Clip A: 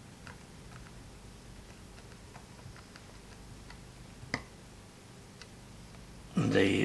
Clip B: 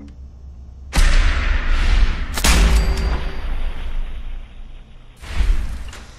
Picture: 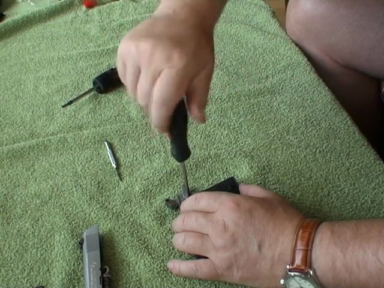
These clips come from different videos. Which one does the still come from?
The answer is A